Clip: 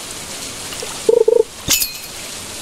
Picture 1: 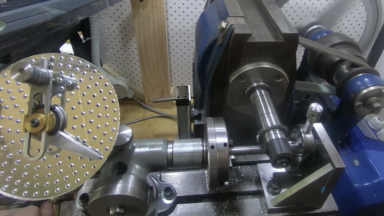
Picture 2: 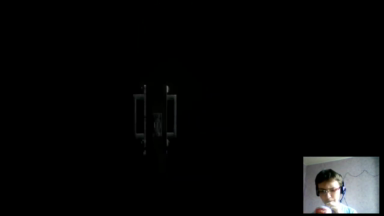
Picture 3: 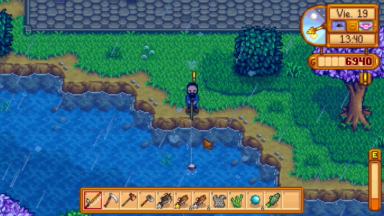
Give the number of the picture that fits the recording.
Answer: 3